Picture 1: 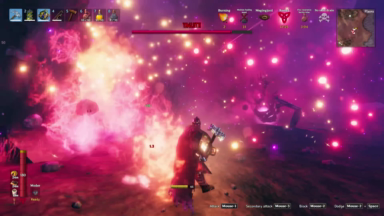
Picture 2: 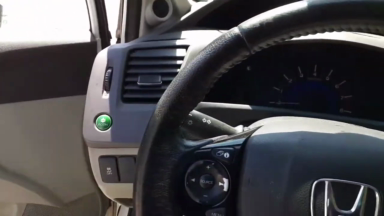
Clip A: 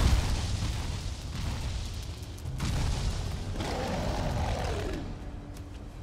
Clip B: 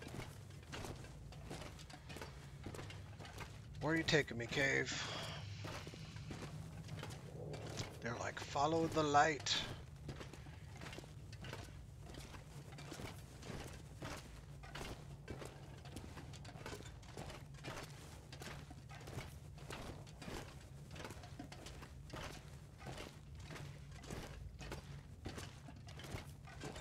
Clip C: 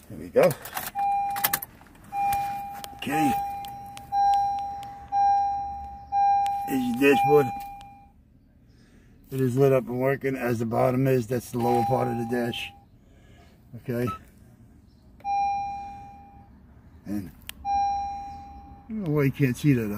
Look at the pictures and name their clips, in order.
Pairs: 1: A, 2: C